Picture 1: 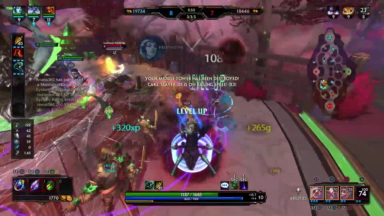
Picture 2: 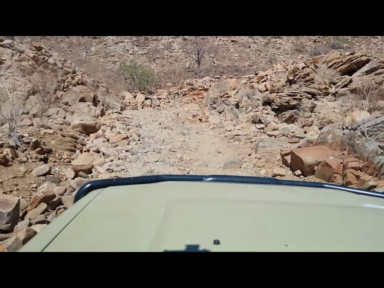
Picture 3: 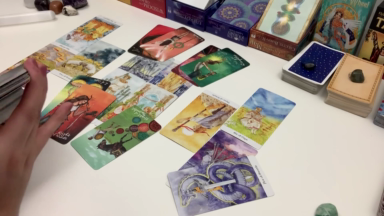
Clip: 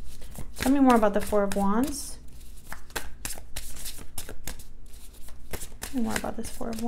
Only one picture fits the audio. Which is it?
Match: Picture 3